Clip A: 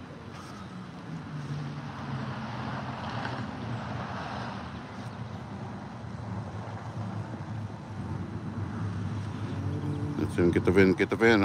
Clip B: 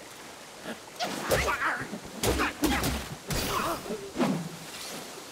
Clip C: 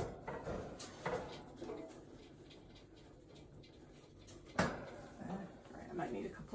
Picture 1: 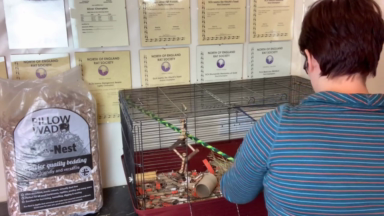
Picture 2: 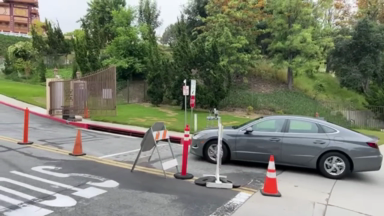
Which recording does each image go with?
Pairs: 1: C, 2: A